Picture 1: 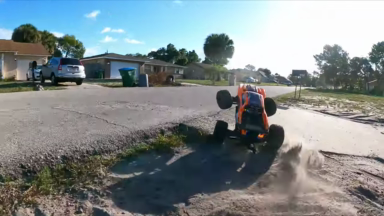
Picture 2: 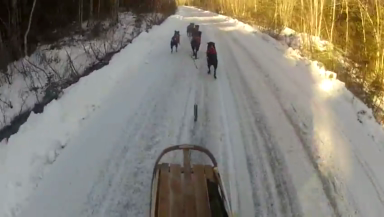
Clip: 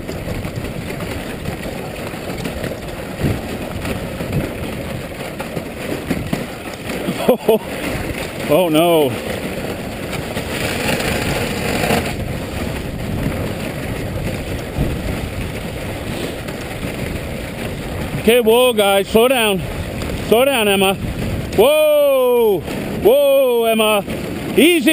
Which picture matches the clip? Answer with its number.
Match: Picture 2